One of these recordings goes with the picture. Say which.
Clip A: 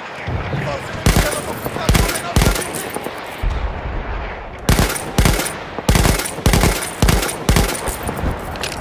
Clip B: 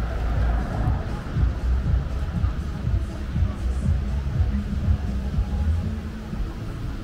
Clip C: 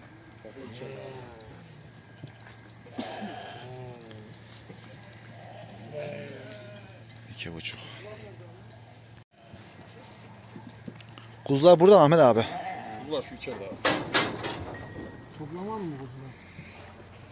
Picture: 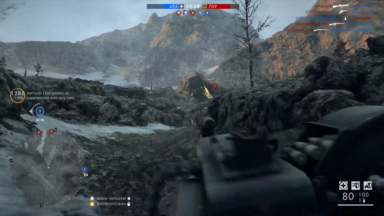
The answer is A